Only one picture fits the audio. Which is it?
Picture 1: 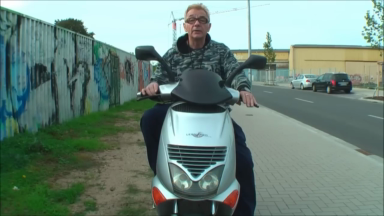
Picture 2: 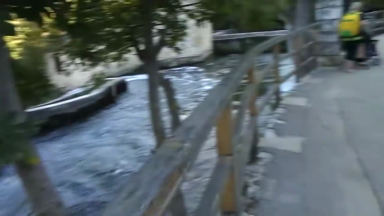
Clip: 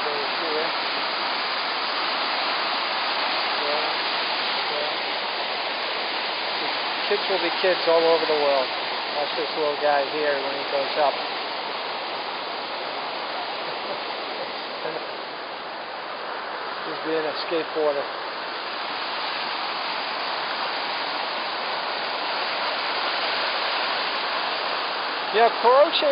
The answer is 2